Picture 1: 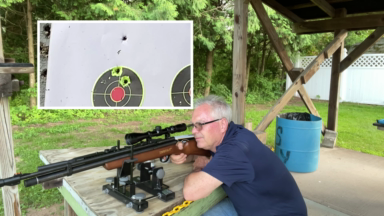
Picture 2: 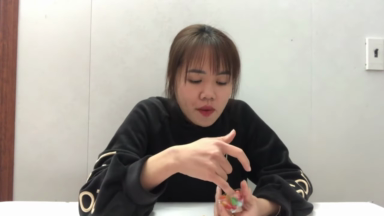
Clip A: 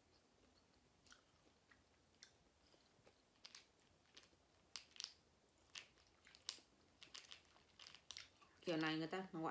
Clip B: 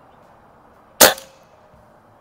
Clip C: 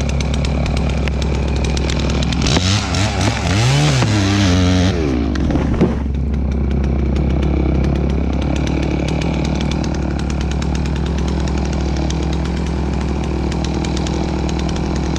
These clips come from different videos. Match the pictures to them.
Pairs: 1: B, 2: A